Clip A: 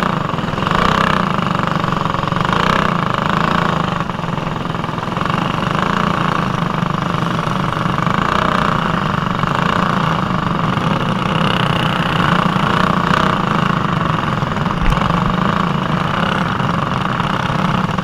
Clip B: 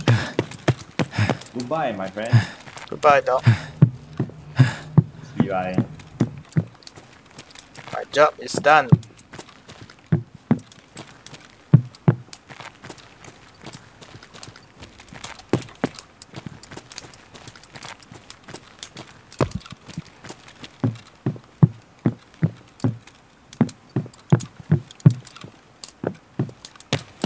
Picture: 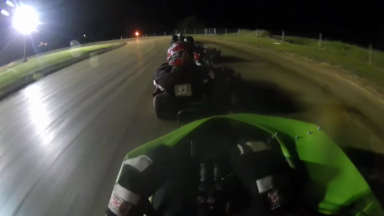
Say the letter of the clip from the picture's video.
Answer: A